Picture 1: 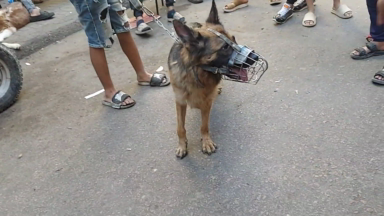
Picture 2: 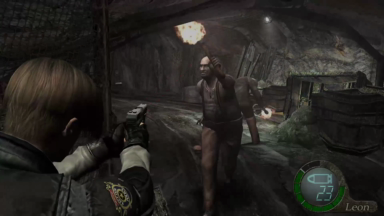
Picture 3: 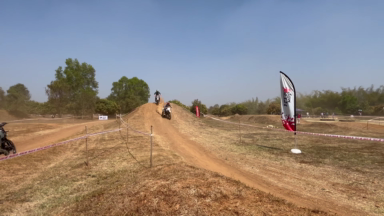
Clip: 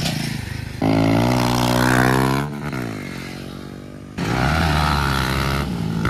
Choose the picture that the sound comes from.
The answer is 3